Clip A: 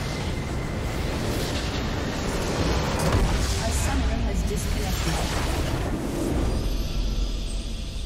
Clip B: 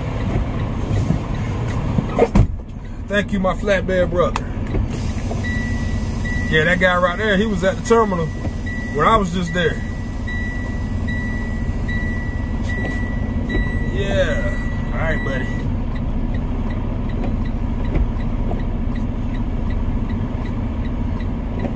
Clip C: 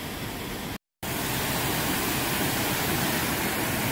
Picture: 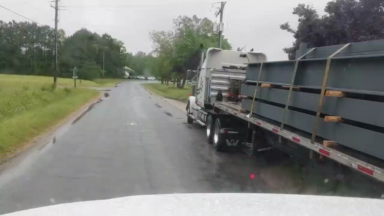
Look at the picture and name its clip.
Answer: B